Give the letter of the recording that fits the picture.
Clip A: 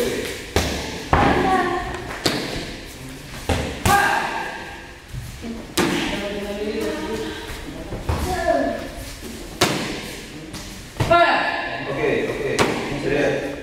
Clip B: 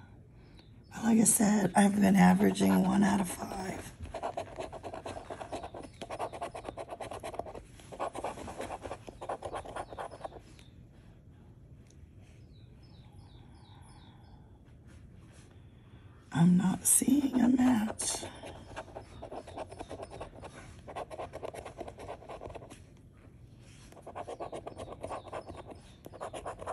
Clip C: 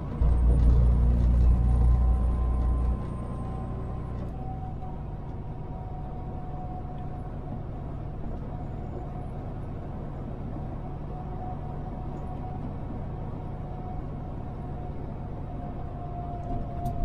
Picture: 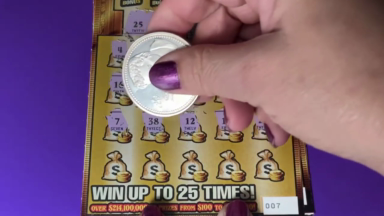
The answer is B